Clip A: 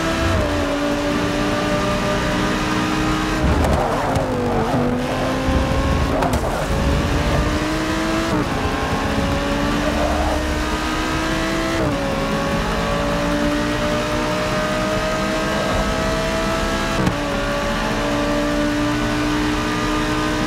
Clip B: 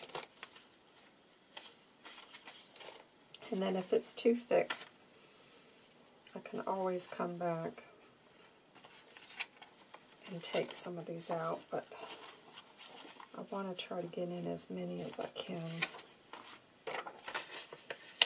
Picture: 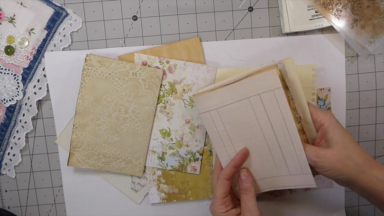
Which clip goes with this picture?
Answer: B